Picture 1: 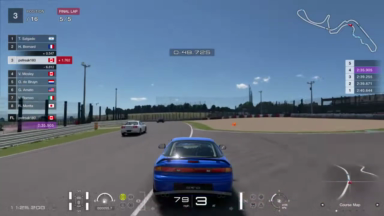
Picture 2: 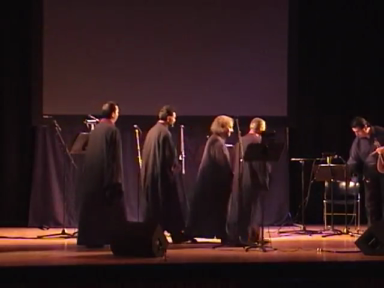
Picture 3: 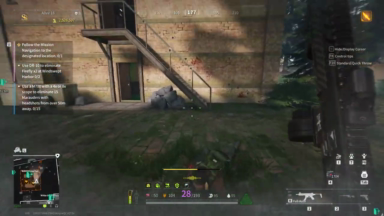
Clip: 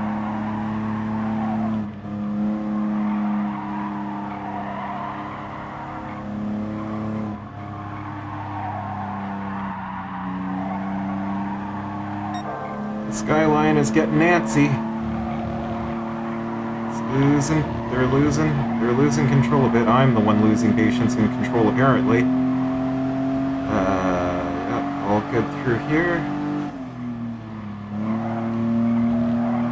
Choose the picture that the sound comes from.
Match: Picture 1